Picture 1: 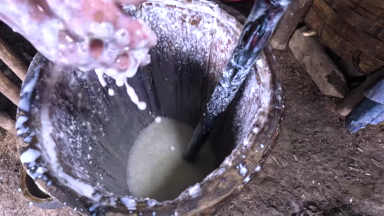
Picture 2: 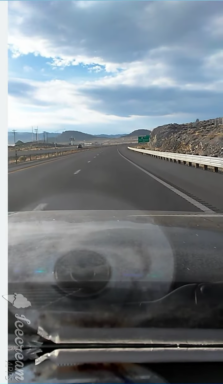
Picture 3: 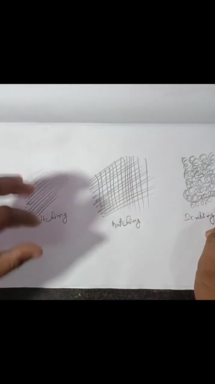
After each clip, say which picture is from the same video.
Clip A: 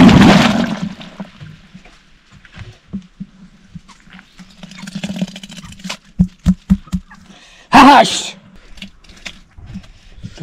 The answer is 1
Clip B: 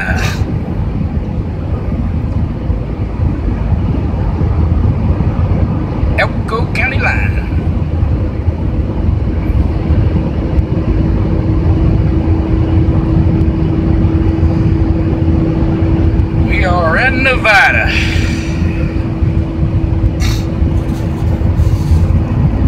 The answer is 2